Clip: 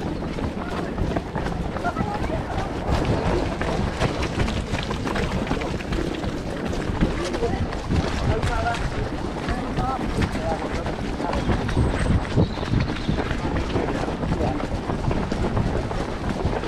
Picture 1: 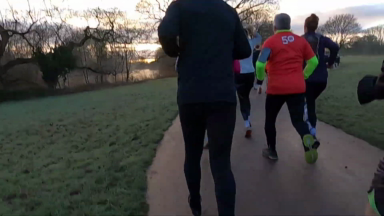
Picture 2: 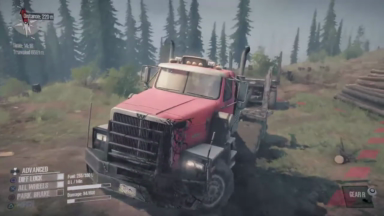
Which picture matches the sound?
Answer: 1